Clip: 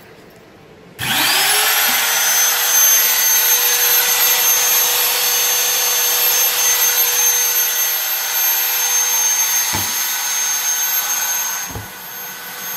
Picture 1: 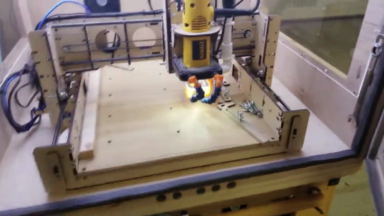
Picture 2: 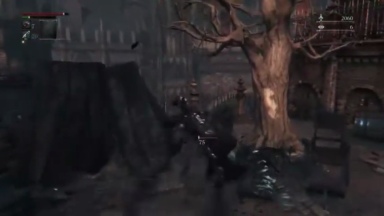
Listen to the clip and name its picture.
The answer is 1